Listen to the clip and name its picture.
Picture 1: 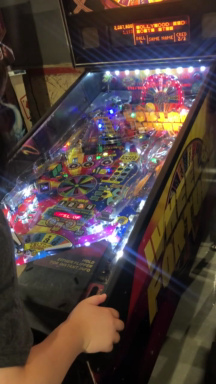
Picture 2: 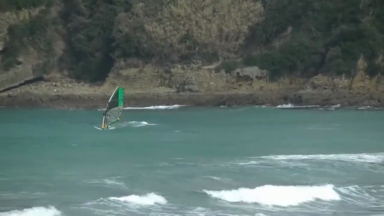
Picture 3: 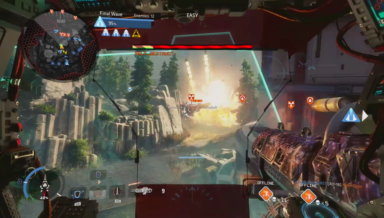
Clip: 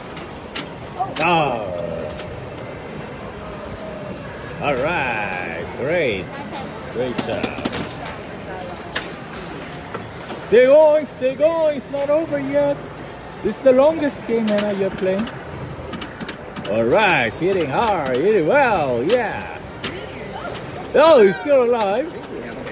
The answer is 1